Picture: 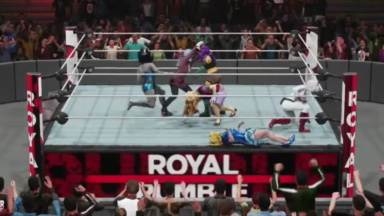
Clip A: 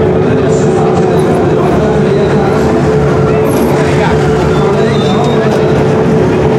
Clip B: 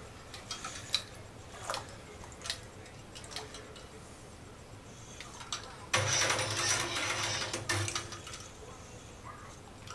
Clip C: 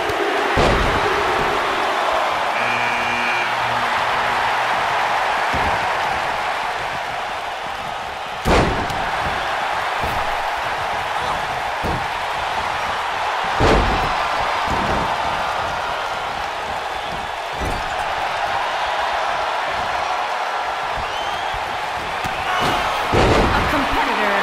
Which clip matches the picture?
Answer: C